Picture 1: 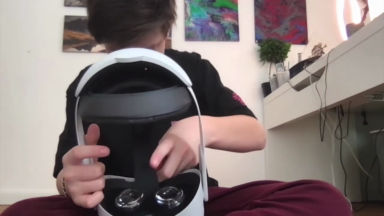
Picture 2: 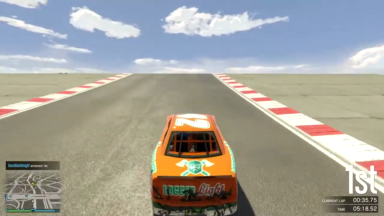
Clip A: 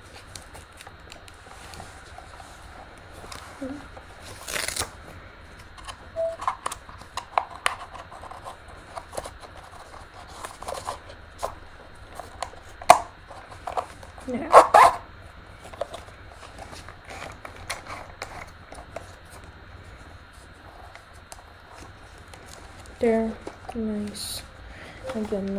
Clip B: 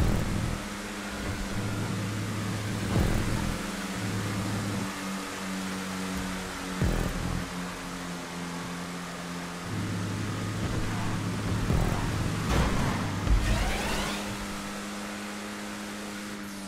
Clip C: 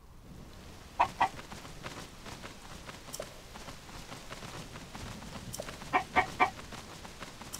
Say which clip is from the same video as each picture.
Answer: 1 A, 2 B